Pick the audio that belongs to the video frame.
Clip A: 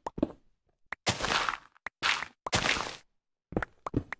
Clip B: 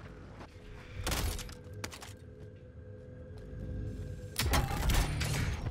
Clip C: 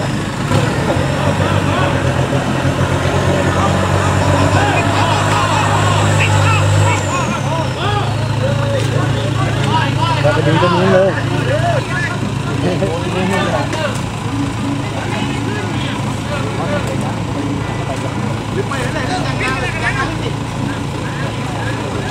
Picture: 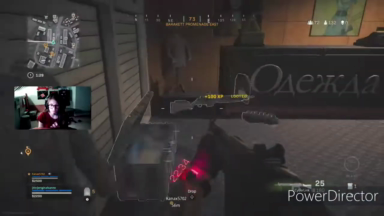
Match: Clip B